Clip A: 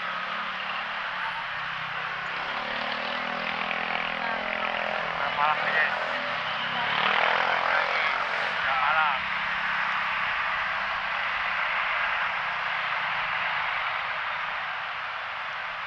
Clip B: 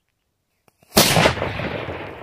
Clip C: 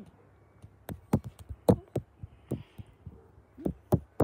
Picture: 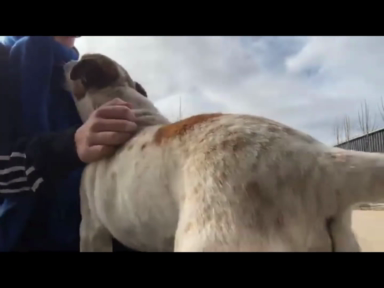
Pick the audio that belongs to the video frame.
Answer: C